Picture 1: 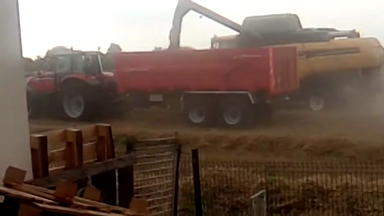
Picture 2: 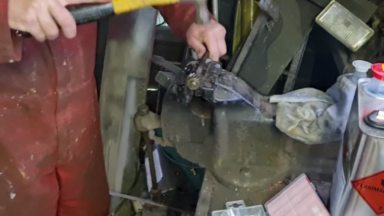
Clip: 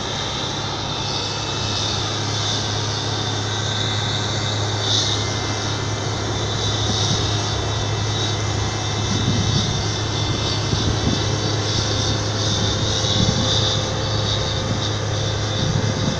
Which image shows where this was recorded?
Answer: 1